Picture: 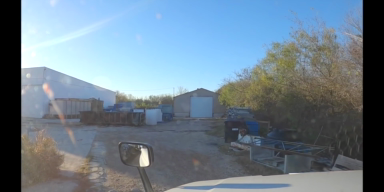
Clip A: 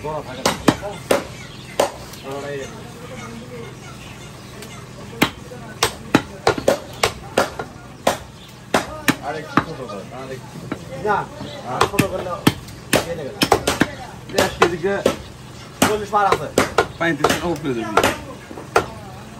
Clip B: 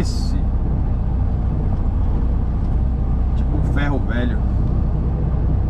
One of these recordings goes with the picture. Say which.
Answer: B